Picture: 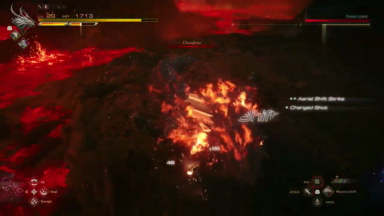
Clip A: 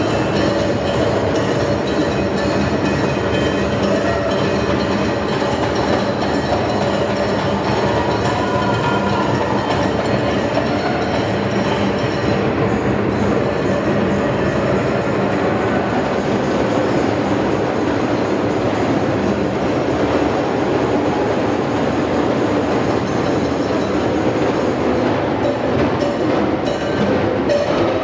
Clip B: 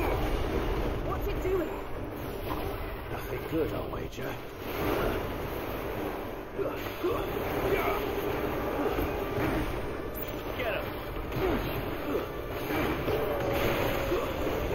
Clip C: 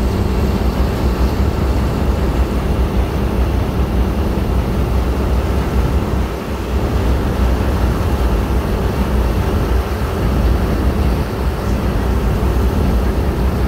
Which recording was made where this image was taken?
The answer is B